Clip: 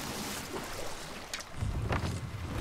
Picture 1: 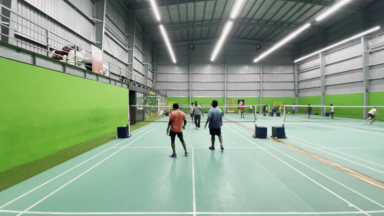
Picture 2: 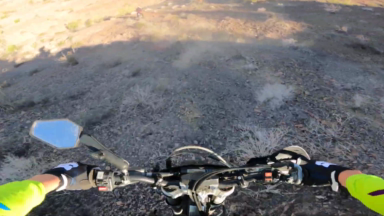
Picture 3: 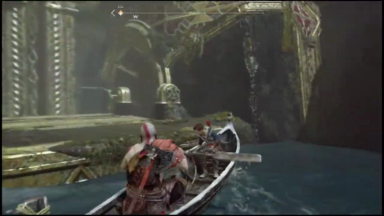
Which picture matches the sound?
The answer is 3